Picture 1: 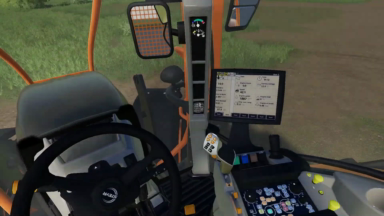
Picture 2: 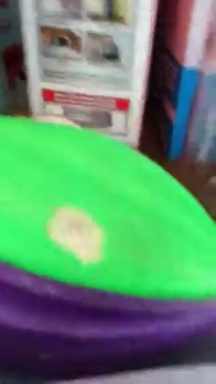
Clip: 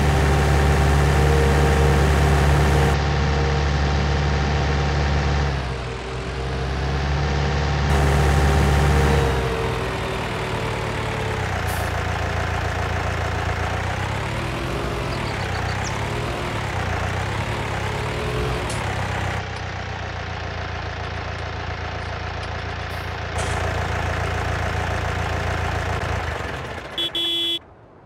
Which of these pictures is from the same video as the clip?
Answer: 1